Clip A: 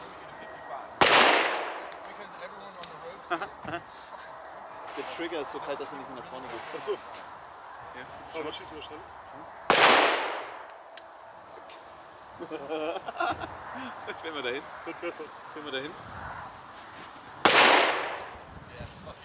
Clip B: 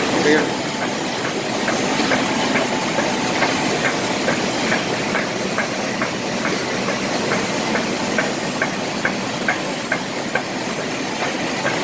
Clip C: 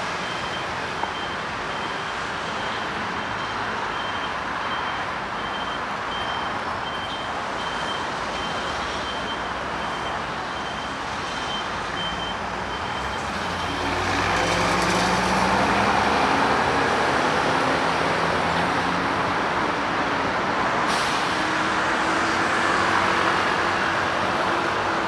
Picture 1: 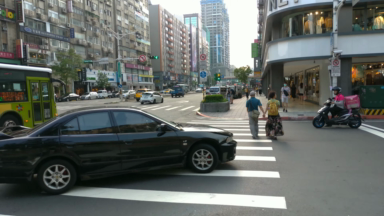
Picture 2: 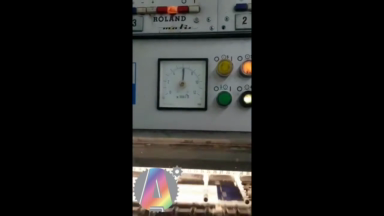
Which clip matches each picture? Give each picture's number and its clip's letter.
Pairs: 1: C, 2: B